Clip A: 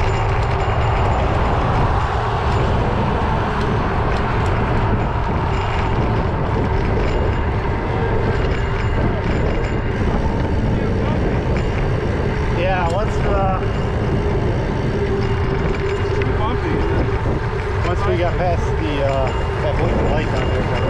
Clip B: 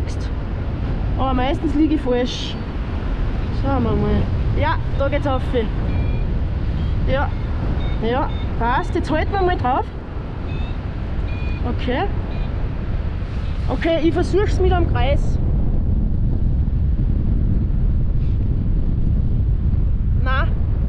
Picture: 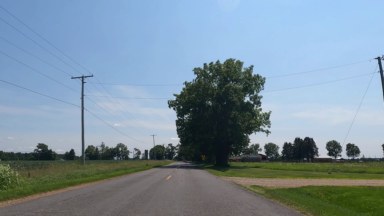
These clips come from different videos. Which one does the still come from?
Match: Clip A